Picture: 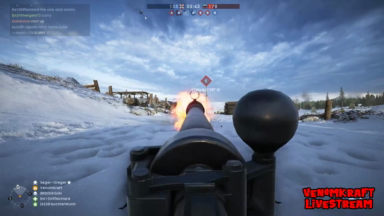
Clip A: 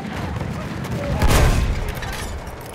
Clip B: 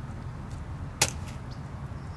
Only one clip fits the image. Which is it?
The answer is A